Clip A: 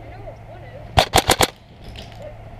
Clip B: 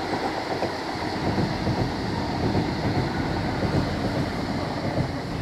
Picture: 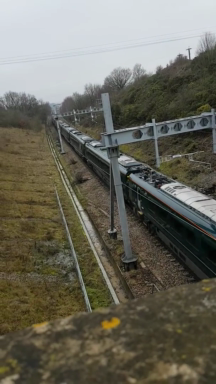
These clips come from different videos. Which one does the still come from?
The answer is B